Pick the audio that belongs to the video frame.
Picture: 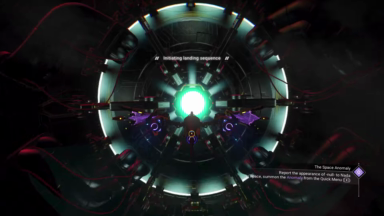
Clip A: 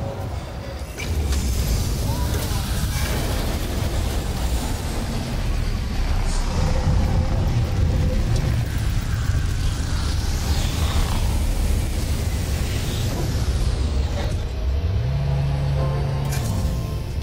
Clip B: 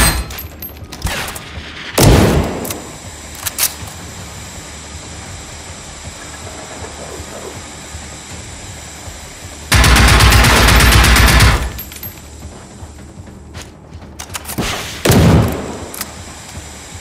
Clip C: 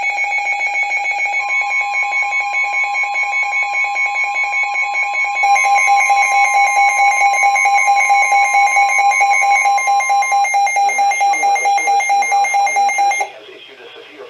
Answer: A